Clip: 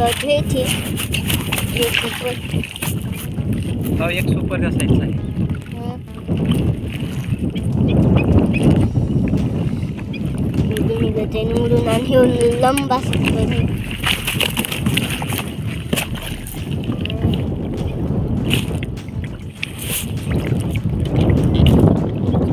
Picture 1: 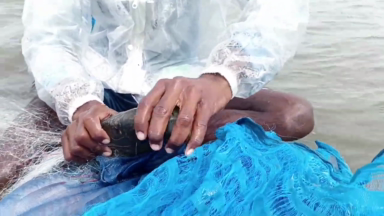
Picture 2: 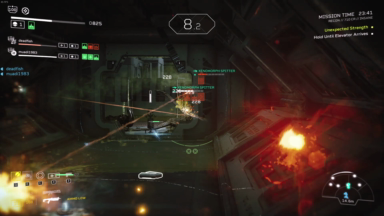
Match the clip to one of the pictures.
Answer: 1